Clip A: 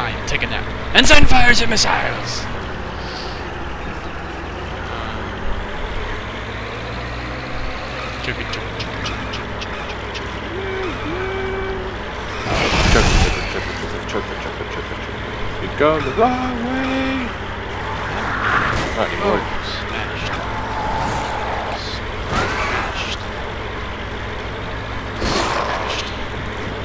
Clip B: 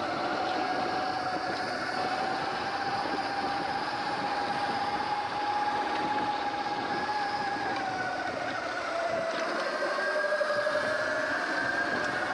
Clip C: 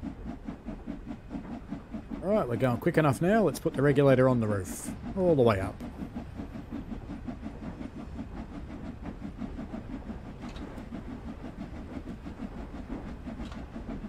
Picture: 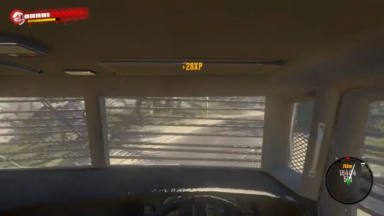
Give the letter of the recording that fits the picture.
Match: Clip A